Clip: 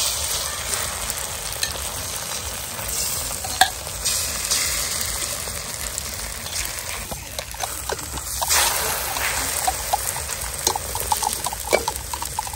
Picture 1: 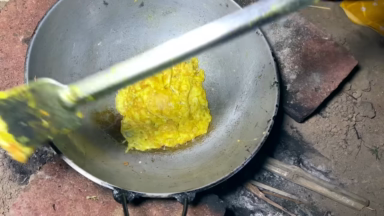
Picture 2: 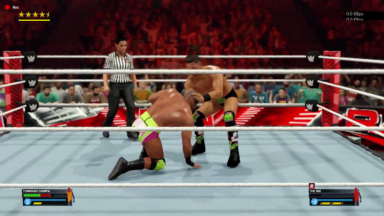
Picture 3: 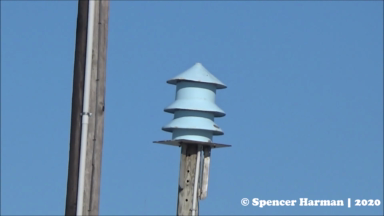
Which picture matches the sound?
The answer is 1